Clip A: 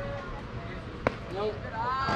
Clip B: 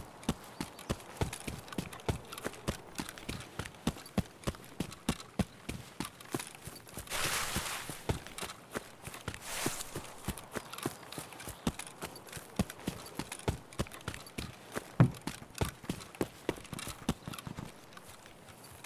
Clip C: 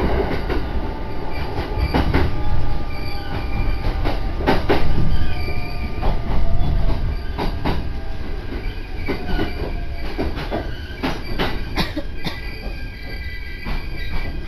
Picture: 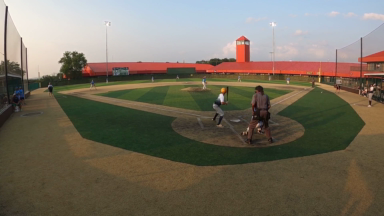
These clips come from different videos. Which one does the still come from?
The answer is A